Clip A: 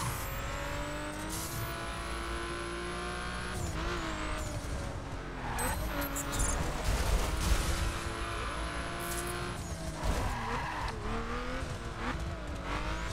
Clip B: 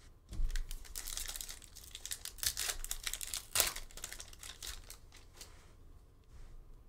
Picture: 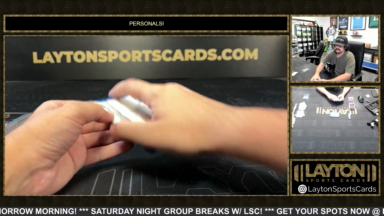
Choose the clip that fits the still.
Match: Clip B